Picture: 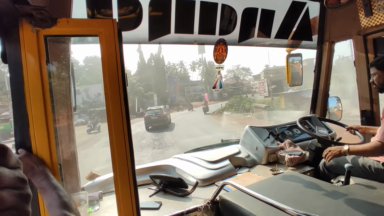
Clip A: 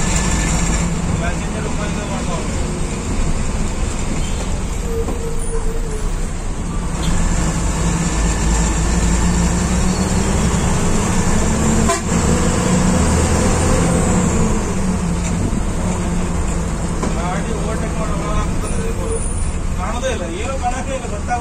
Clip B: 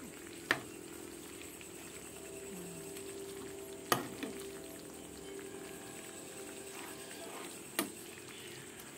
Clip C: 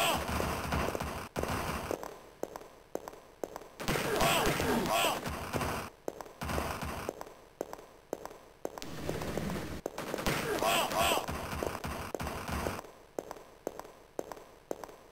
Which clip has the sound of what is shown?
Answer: A